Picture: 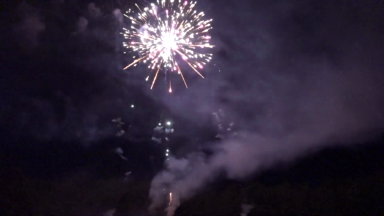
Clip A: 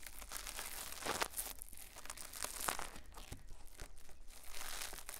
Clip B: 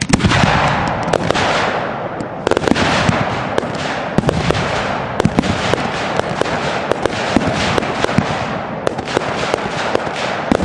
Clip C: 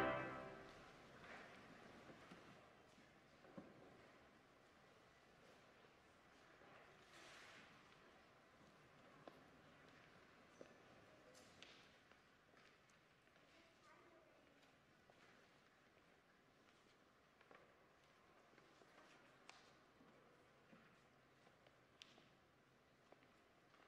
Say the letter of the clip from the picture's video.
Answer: B